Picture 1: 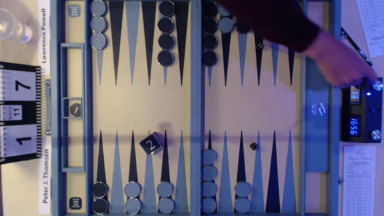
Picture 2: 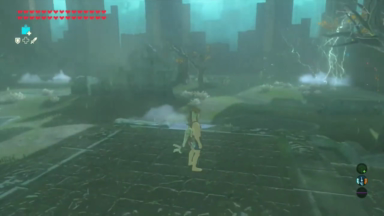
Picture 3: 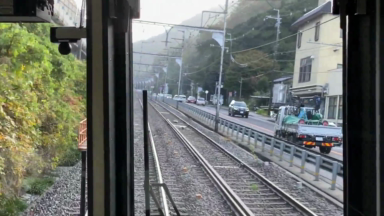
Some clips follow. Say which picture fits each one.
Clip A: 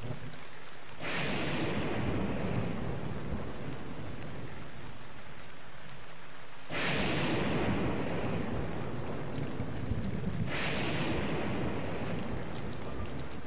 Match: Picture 2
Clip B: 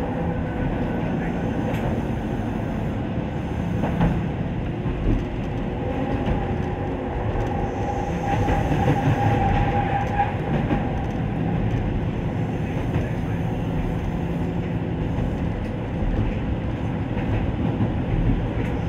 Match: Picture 3